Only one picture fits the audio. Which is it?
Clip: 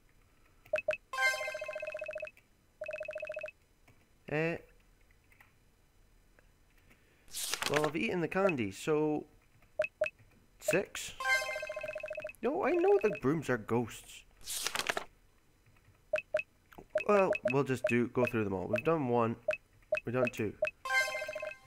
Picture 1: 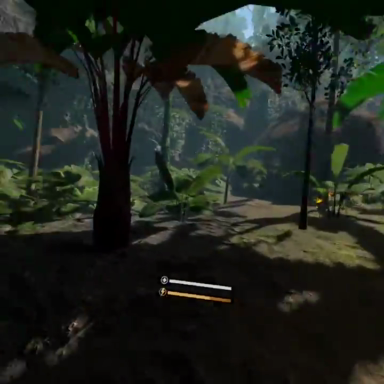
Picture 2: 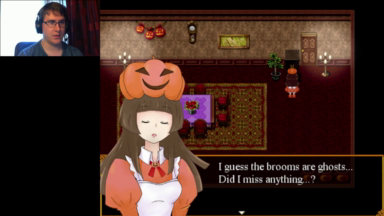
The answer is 2